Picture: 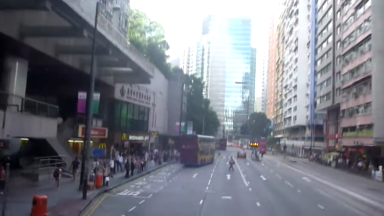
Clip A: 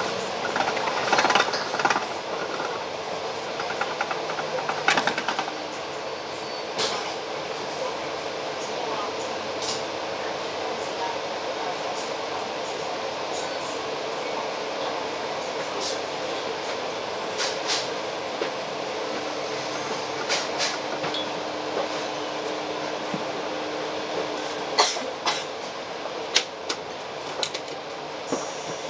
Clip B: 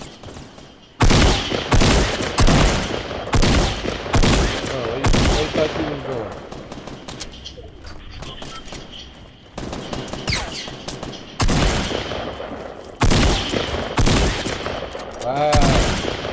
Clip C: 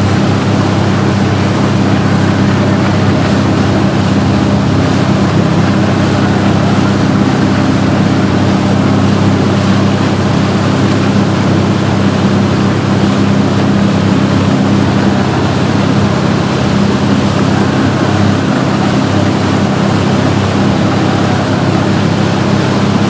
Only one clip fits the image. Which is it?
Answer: A